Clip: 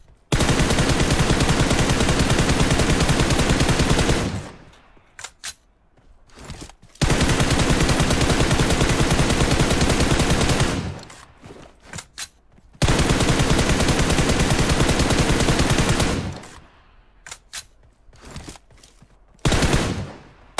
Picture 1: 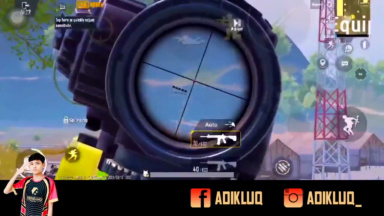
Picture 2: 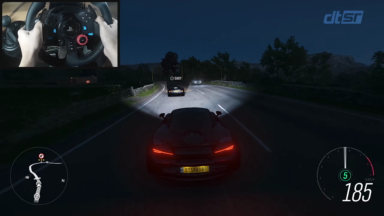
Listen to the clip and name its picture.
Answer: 1